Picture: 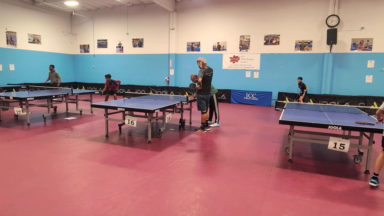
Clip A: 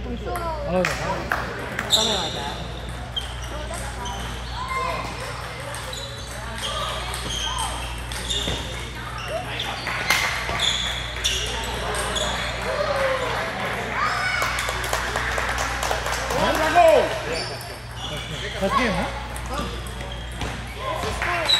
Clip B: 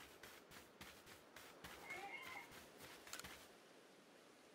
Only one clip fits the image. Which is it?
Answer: A